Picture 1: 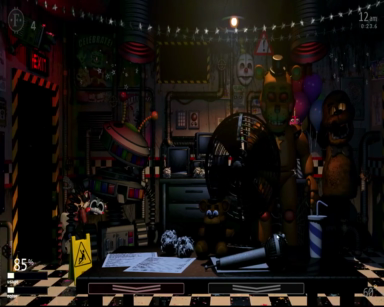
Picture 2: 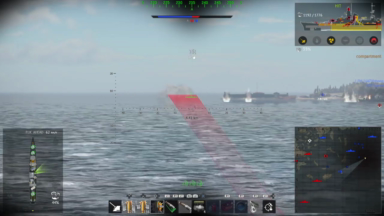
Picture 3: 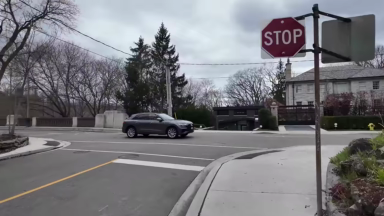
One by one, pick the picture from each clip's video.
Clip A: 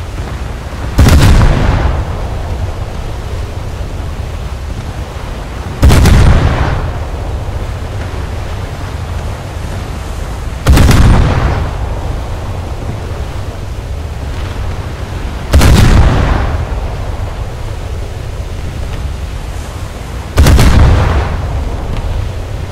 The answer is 2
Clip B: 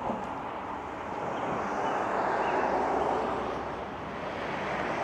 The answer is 3